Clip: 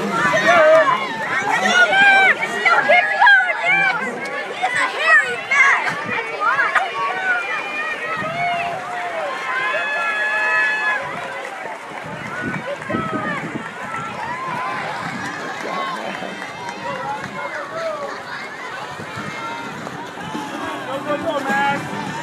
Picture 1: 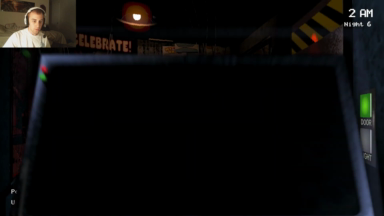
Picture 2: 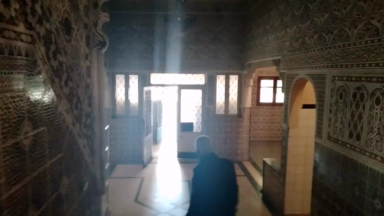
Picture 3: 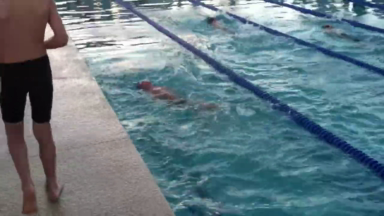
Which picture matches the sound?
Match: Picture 3